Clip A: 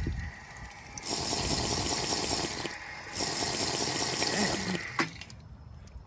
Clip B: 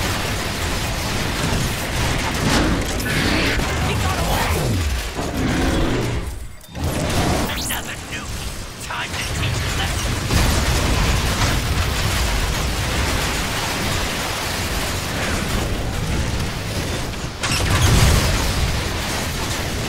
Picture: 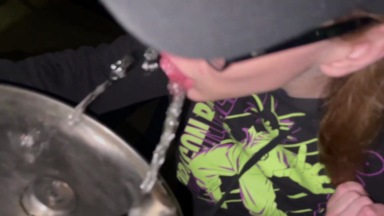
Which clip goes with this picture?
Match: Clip A